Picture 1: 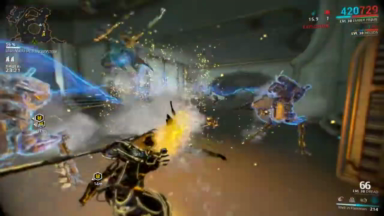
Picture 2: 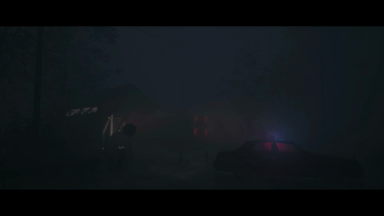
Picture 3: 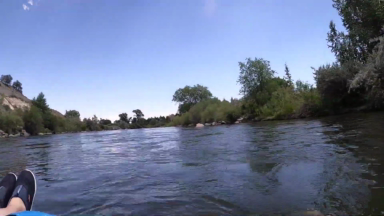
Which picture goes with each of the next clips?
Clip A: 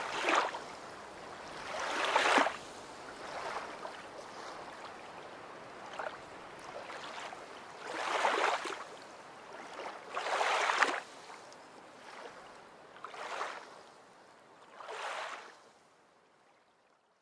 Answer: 3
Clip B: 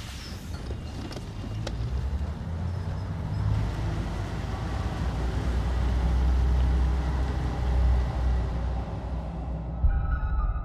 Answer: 2